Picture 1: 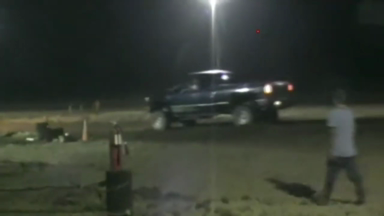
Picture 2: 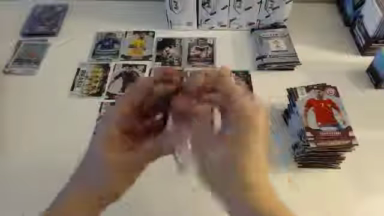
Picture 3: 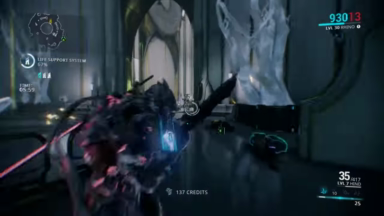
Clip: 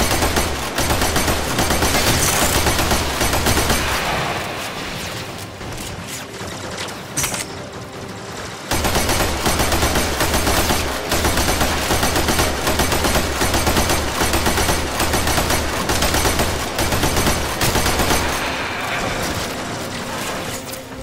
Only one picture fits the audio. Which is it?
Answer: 3